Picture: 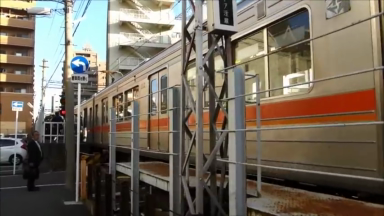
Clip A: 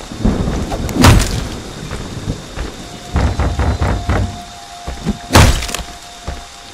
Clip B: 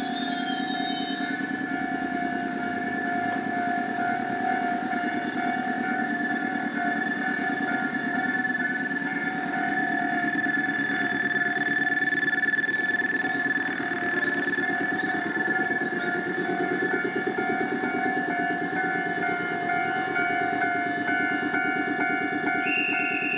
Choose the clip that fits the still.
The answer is B